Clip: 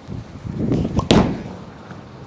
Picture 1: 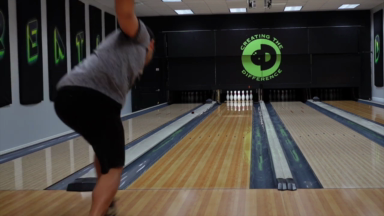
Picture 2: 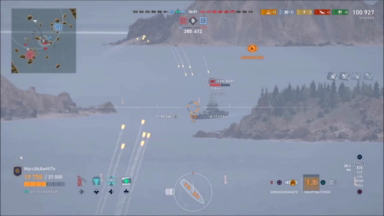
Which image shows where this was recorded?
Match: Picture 1